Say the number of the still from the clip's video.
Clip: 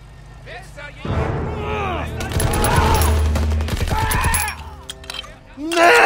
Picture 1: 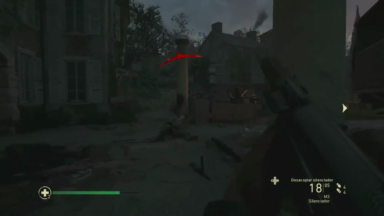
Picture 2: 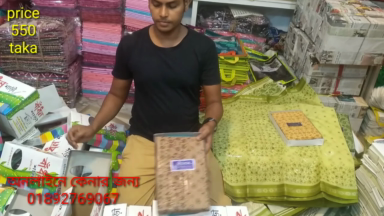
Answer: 1